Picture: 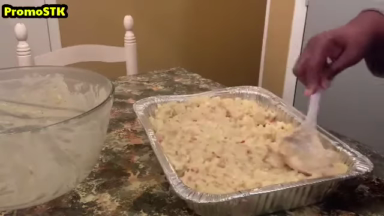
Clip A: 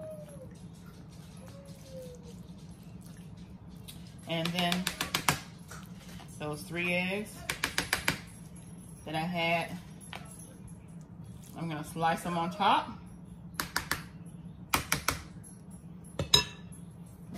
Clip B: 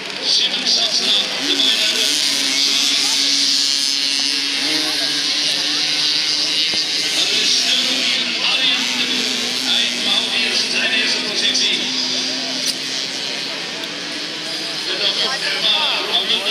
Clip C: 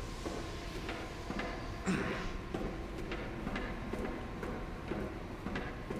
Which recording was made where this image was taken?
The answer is A